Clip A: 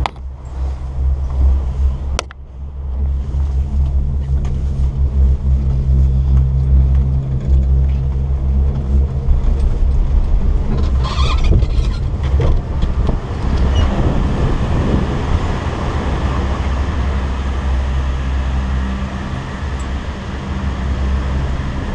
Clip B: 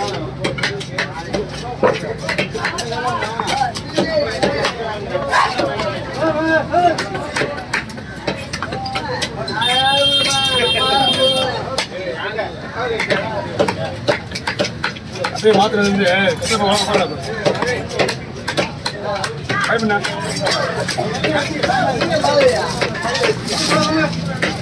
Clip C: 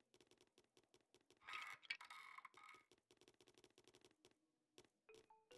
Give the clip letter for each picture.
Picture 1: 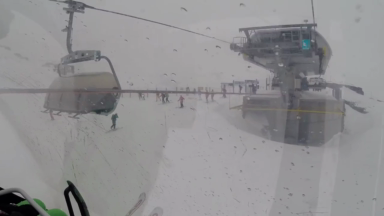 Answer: A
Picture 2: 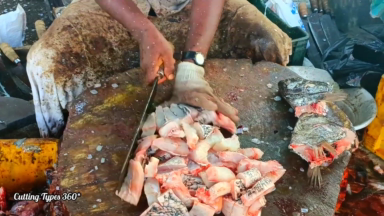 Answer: B